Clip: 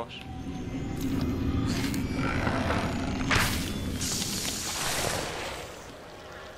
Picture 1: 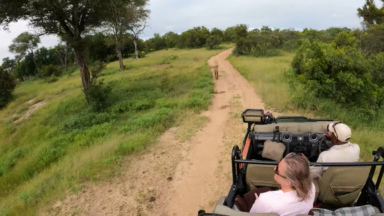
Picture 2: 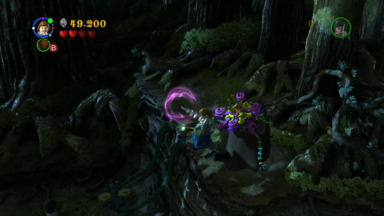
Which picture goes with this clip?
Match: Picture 2